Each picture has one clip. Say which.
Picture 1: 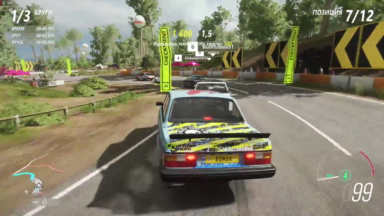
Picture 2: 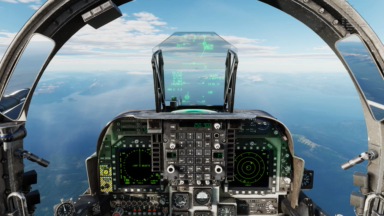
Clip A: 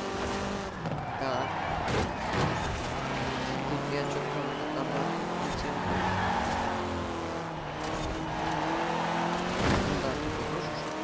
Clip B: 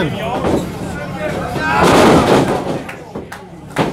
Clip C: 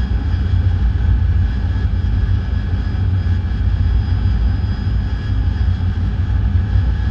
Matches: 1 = A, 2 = C